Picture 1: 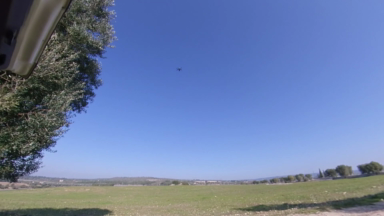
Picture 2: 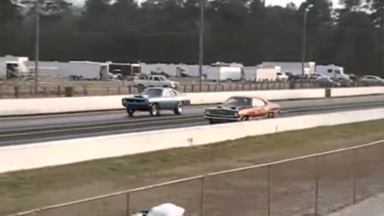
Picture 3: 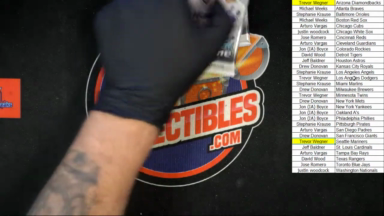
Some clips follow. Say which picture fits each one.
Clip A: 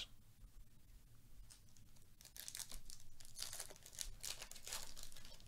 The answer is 3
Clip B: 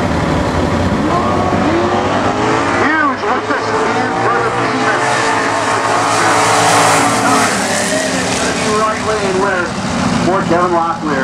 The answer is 2